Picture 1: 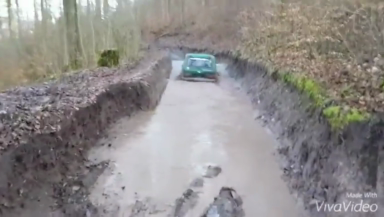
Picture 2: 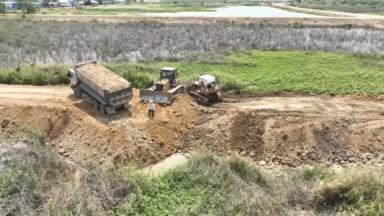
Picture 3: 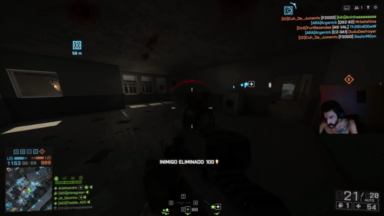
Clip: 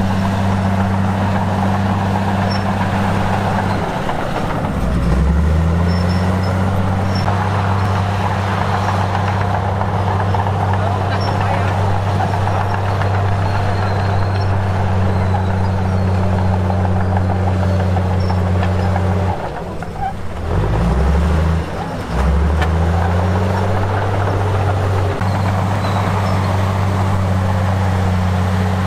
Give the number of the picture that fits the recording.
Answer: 2